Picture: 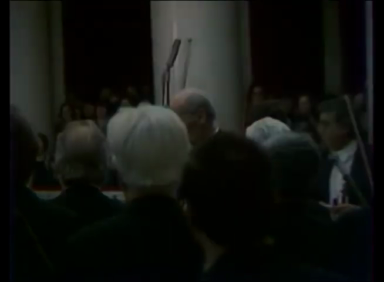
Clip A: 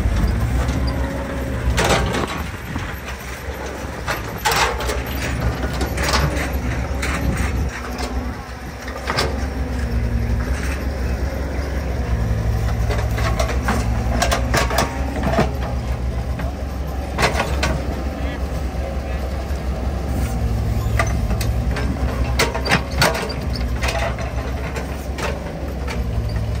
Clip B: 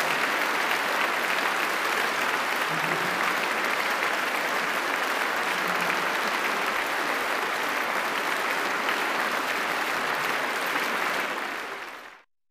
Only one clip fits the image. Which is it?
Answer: B